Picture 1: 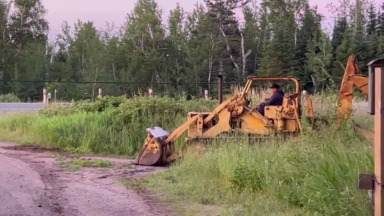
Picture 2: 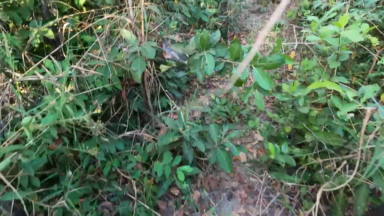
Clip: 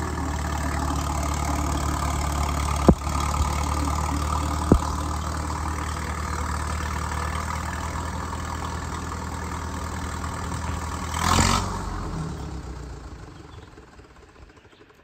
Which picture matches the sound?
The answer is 1